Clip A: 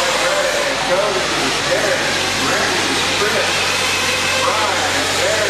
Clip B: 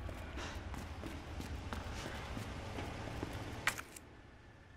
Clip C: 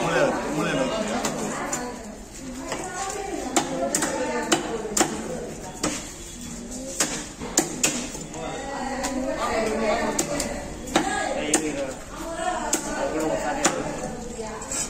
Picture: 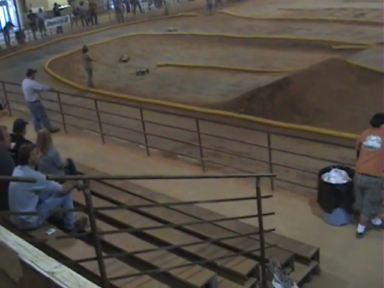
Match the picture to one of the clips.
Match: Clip A